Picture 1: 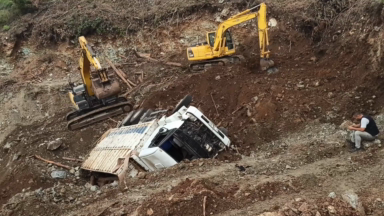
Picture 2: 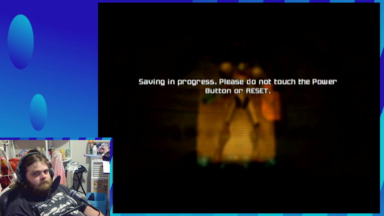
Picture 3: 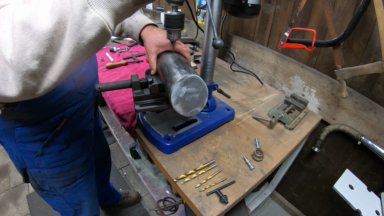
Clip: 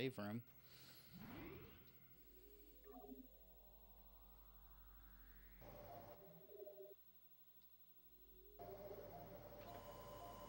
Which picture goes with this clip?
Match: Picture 2